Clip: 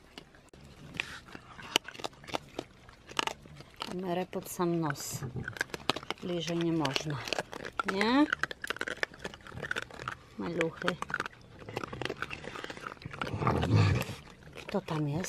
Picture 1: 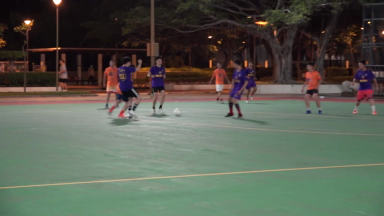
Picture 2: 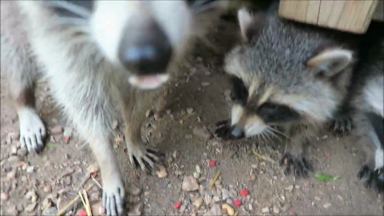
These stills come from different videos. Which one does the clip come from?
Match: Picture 2